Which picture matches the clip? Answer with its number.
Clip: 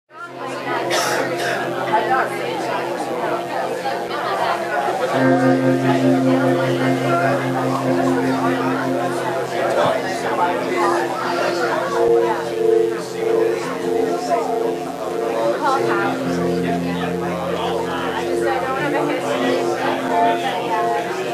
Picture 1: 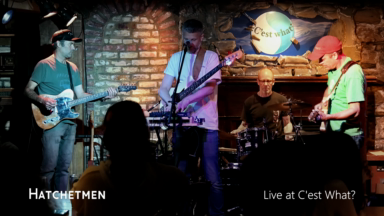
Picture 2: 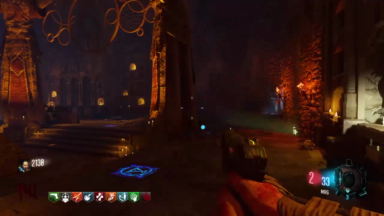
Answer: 1